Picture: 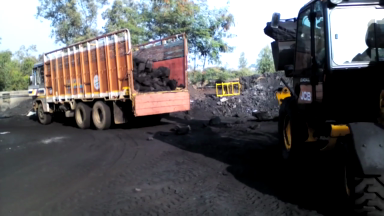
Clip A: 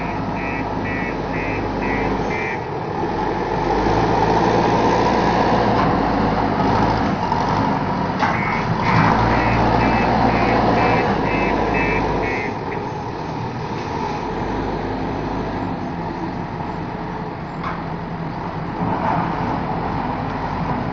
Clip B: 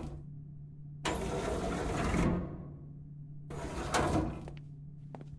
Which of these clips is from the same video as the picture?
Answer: A